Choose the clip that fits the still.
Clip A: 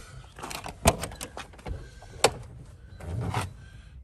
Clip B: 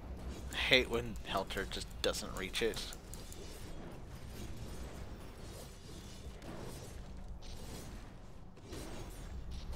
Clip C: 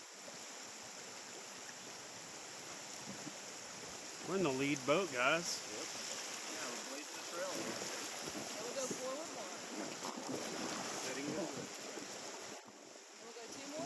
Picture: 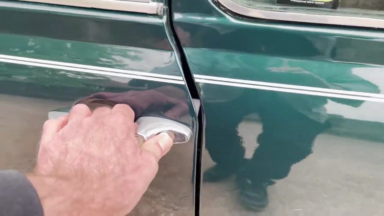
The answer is A